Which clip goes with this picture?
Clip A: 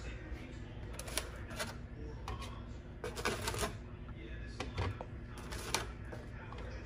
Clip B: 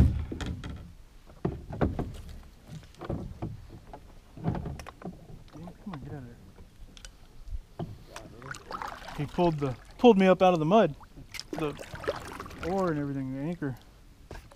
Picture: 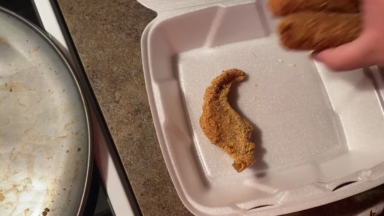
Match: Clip A